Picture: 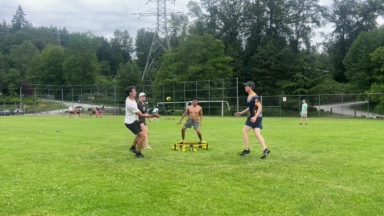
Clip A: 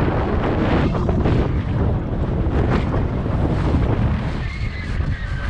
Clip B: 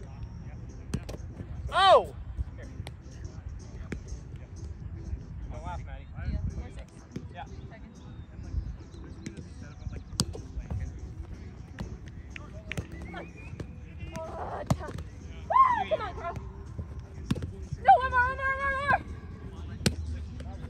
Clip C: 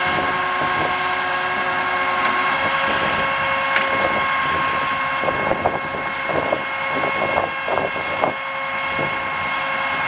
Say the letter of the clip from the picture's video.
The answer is B